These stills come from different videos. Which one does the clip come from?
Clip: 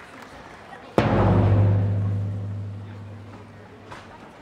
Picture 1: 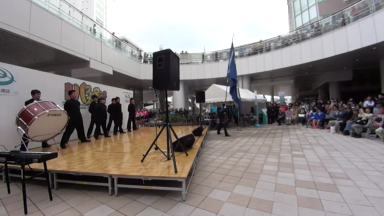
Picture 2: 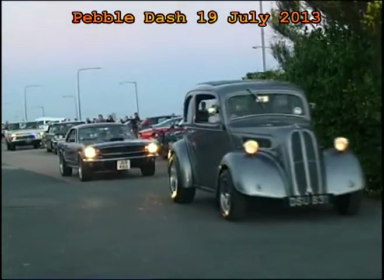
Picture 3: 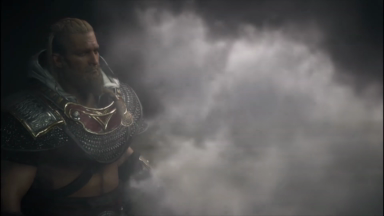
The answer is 1